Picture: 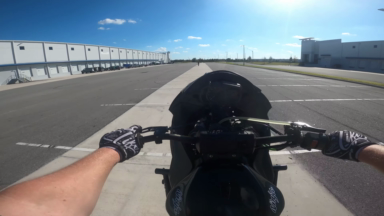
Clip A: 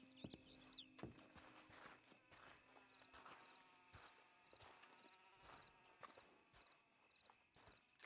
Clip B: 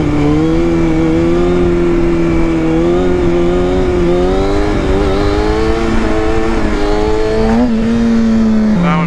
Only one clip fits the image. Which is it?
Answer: B